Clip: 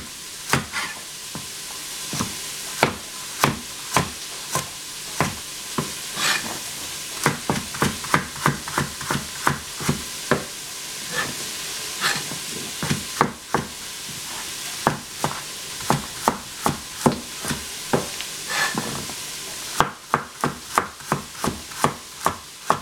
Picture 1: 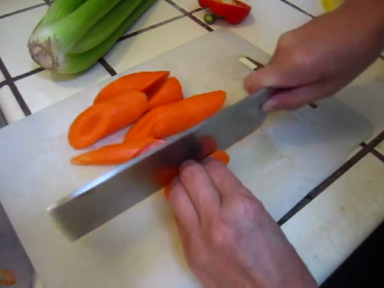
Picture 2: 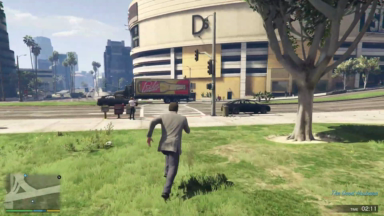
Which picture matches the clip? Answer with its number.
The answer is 1